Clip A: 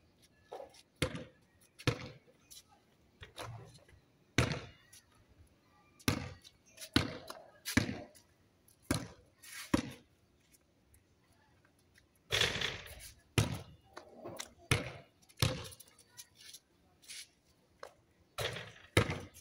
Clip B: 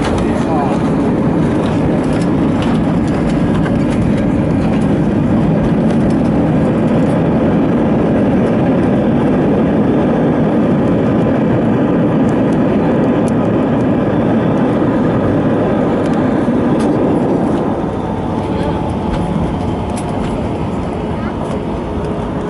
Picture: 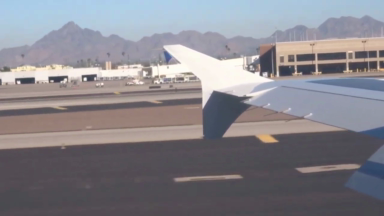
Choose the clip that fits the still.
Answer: B